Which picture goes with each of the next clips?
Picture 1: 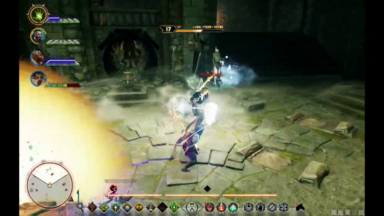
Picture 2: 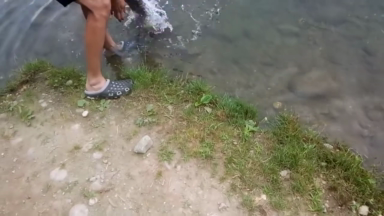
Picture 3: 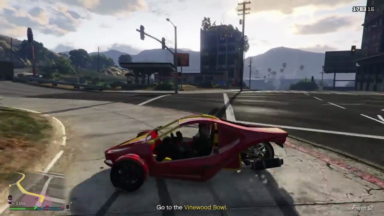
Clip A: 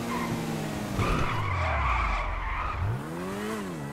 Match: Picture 3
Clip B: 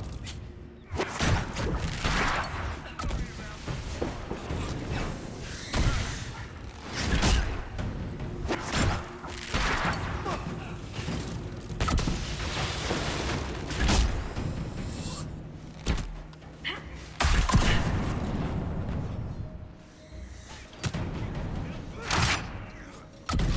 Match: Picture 1